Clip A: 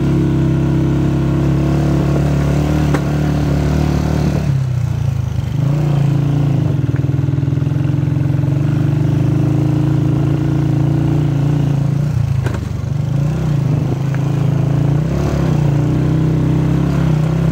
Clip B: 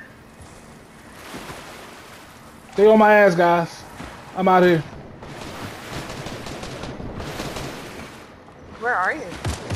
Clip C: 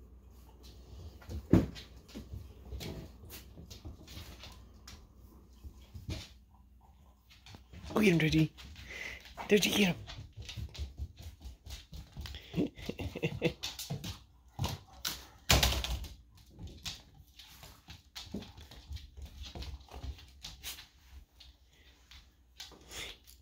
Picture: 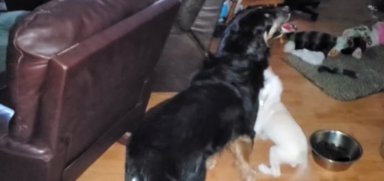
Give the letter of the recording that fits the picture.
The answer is C